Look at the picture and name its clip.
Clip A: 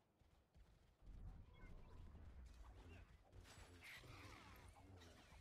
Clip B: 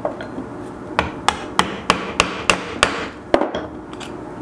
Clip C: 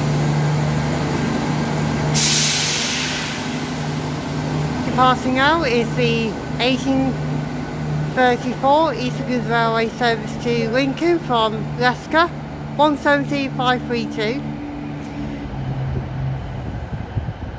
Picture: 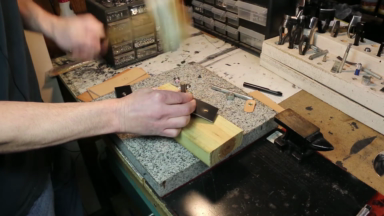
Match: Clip B